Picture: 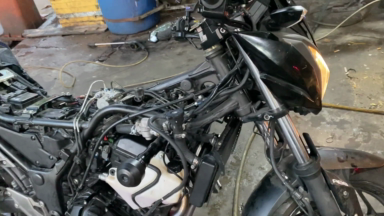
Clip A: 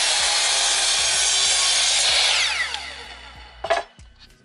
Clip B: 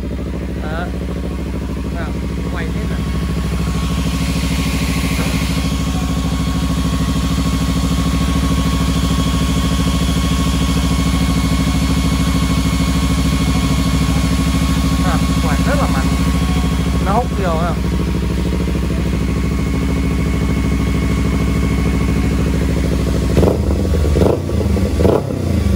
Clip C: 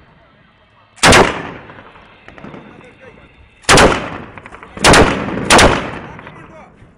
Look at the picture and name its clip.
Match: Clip B